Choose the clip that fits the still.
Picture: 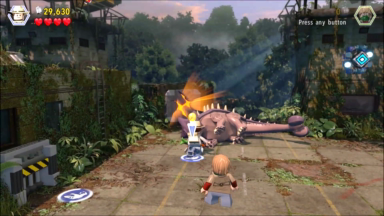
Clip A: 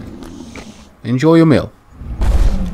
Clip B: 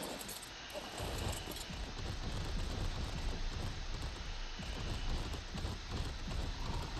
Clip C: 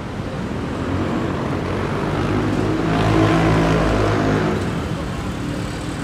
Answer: A